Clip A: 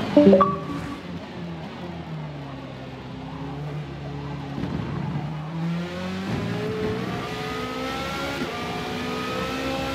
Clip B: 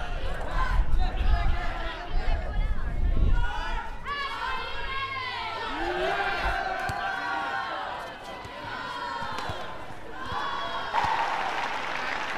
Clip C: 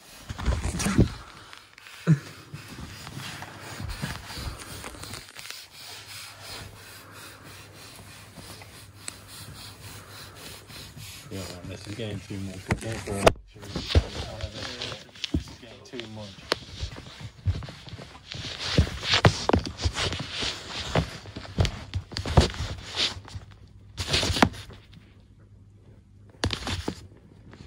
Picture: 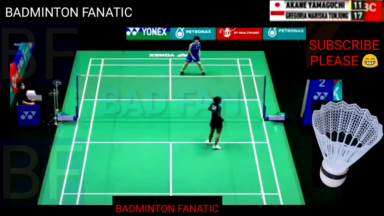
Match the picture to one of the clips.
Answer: B